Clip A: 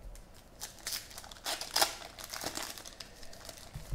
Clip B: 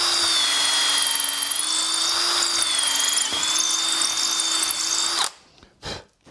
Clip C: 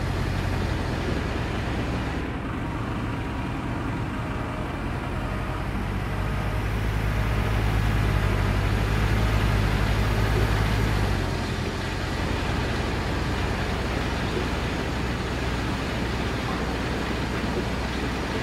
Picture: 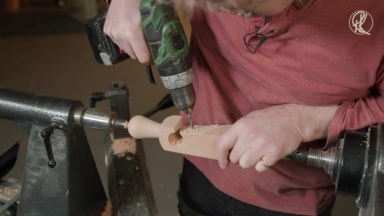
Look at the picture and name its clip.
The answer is B